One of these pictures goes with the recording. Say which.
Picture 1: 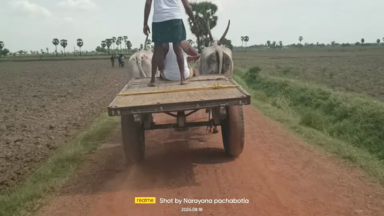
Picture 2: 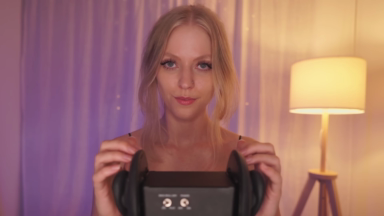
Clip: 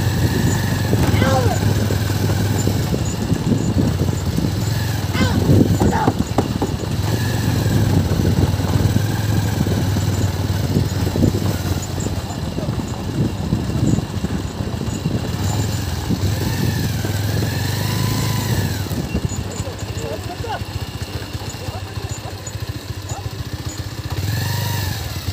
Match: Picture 1